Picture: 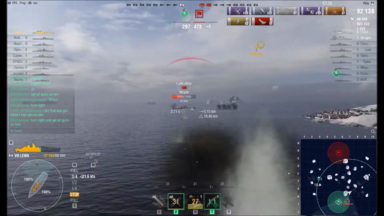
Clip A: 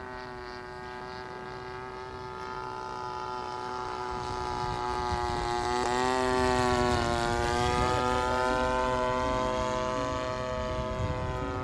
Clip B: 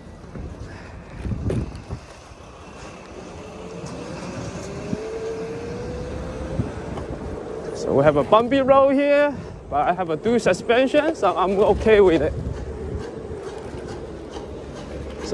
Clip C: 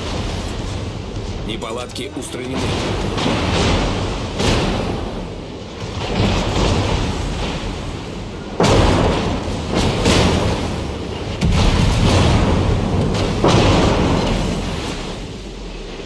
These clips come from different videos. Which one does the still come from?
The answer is C